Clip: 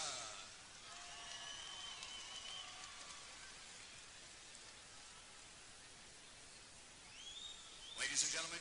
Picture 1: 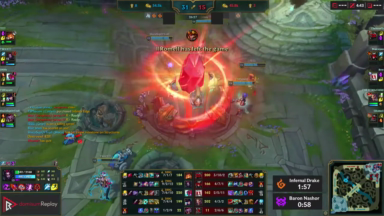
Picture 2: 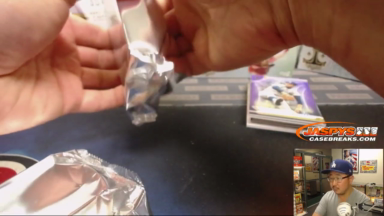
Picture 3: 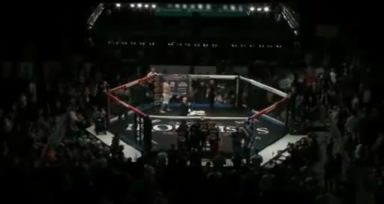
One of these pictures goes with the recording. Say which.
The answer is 3